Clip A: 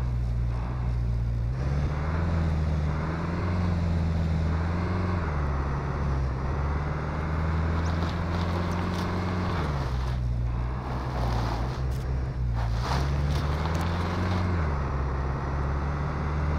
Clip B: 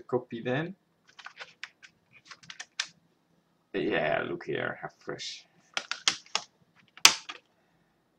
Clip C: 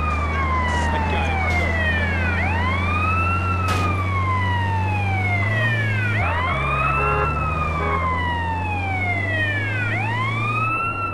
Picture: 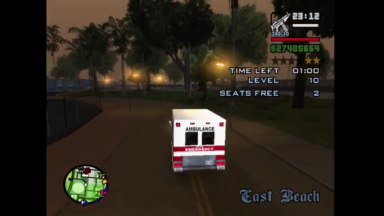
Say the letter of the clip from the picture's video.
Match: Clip C